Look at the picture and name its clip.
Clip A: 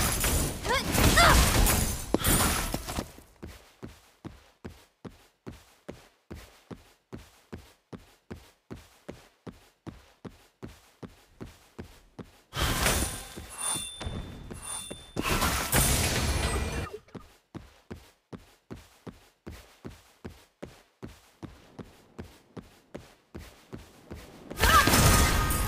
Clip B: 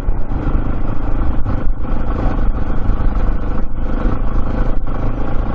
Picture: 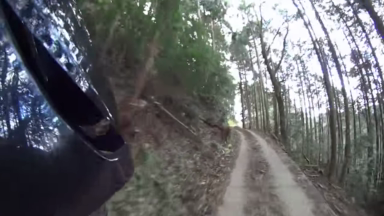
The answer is B